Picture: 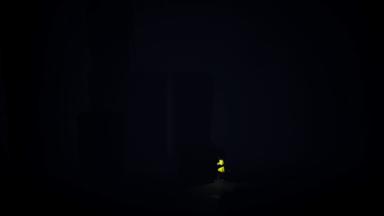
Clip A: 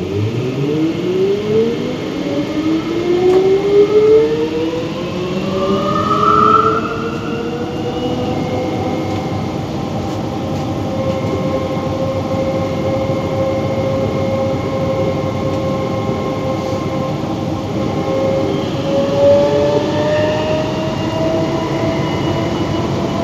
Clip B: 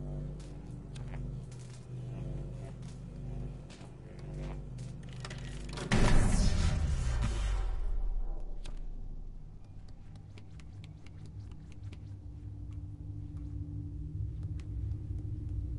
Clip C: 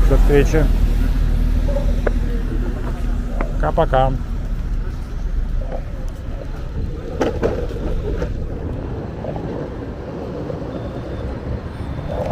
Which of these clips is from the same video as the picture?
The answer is B